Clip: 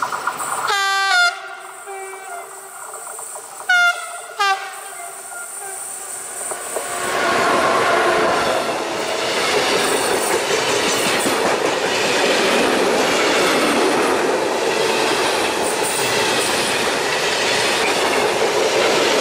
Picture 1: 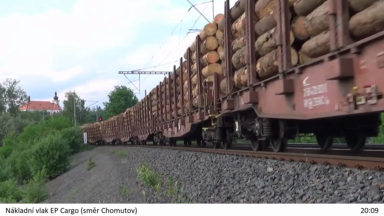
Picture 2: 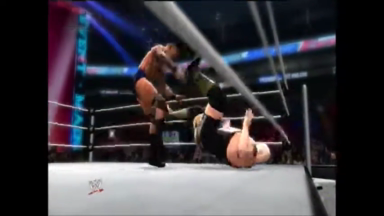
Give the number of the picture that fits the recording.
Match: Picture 1